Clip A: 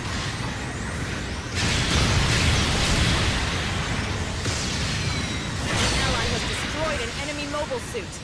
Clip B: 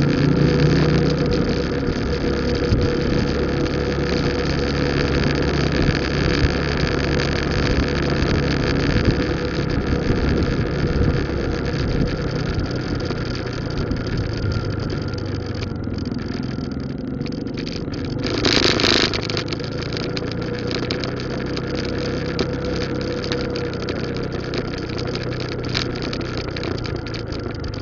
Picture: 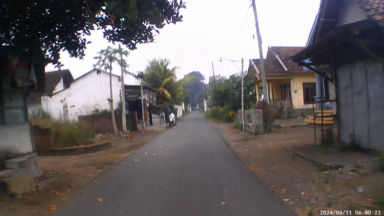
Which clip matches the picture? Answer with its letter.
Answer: B